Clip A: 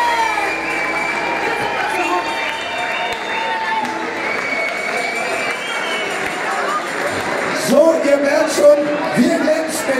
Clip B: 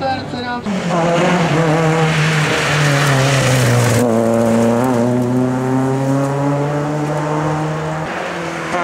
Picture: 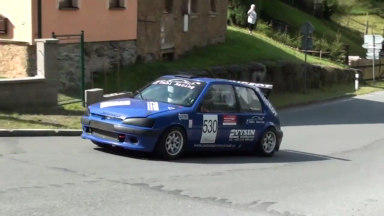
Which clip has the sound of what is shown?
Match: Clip B